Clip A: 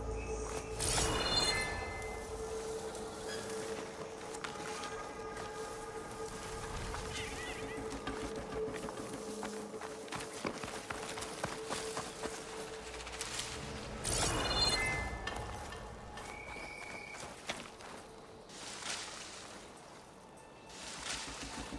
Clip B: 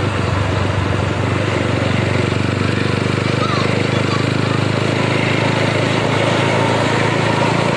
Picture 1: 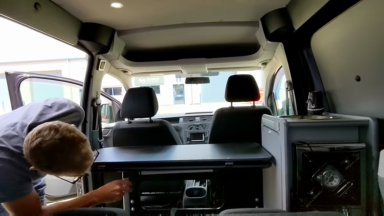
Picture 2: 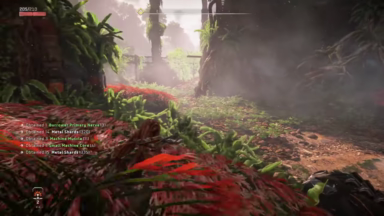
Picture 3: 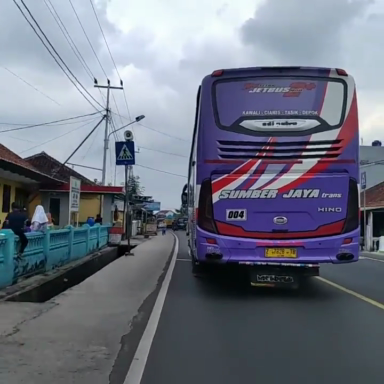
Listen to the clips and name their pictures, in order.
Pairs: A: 2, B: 3